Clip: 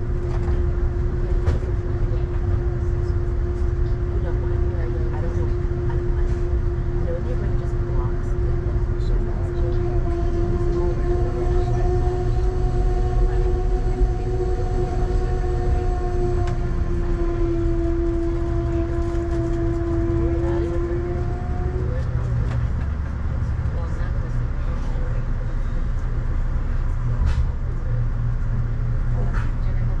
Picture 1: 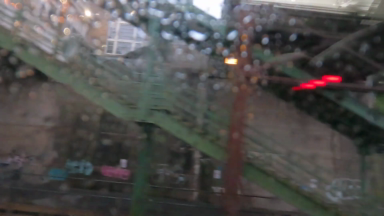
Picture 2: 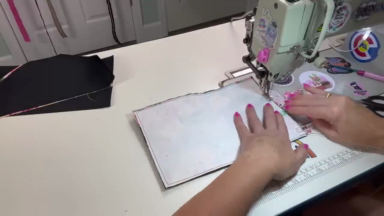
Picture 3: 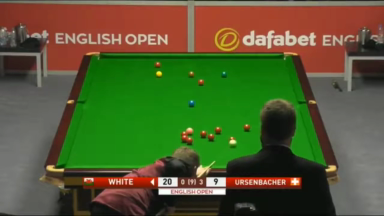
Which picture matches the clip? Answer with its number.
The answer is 1